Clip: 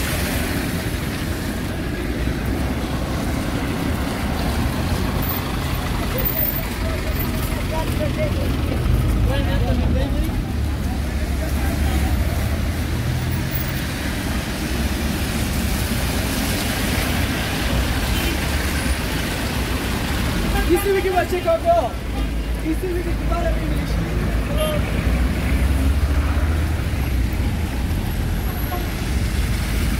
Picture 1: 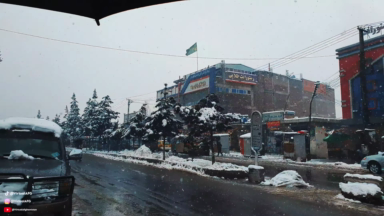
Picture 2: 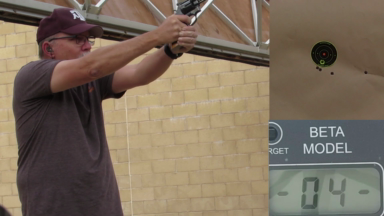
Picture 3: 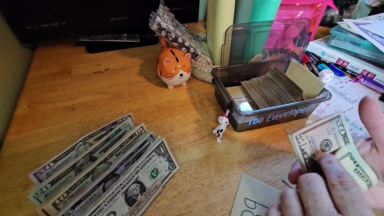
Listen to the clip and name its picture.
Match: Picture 1